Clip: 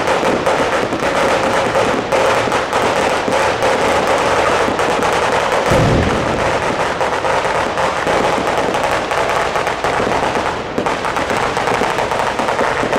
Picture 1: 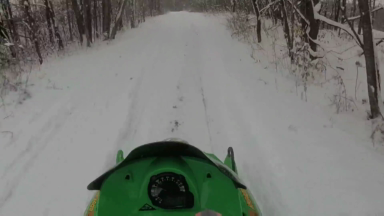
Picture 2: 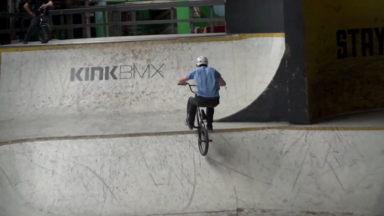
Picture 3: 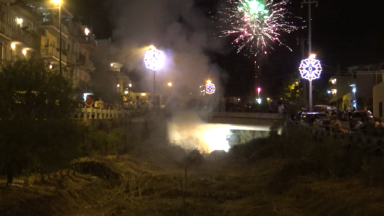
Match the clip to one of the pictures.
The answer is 3